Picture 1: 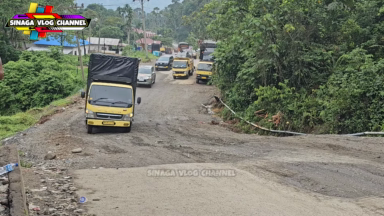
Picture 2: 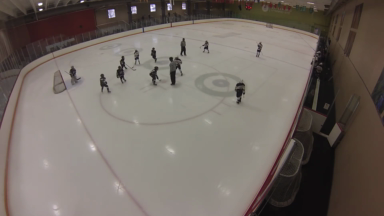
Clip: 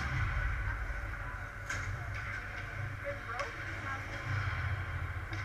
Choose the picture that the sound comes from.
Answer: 2